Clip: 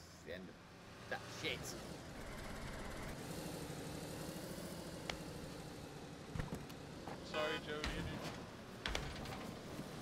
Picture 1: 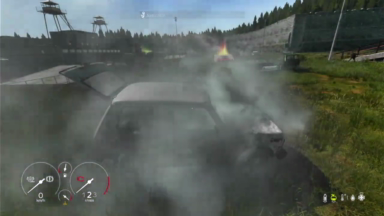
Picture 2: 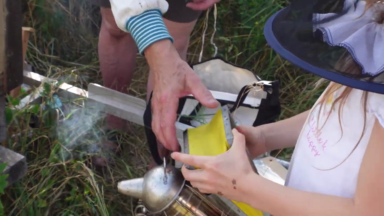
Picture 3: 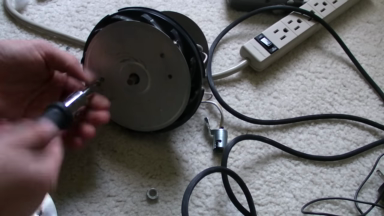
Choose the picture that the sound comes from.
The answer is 1